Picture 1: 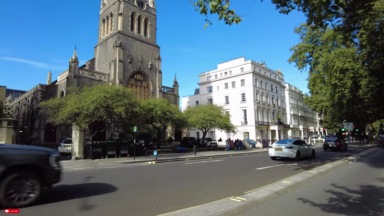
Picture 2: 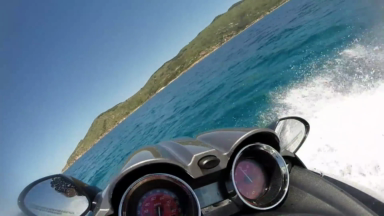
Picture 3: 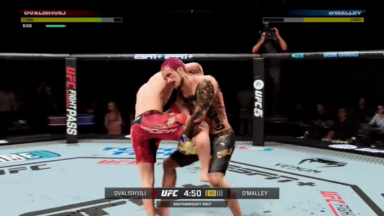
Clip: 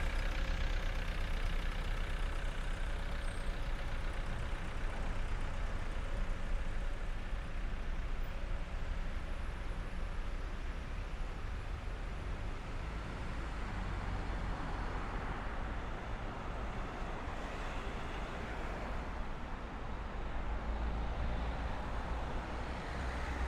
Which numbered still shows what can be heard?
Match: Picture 1